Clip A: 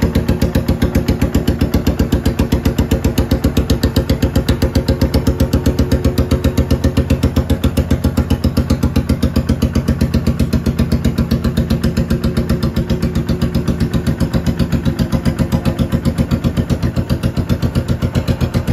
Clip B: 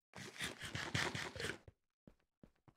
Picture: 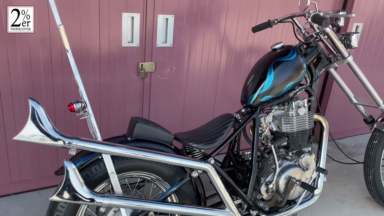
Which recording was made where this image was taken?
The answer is A